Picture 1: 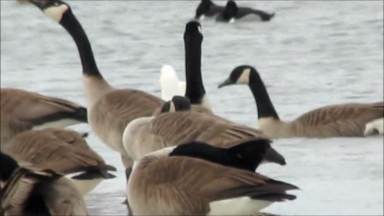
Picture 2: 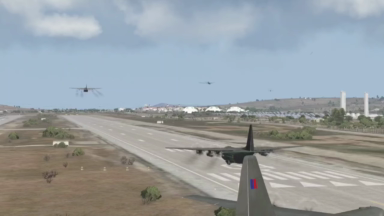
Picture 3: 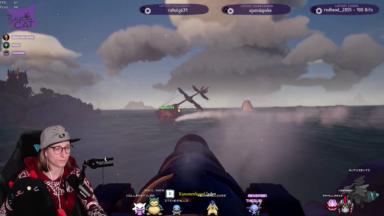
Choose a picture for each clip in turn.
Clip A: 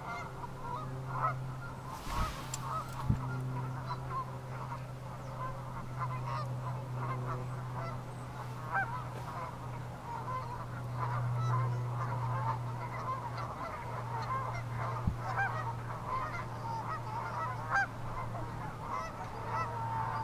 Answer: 1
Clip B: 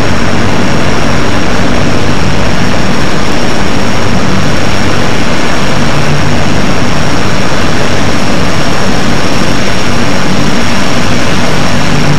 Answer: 2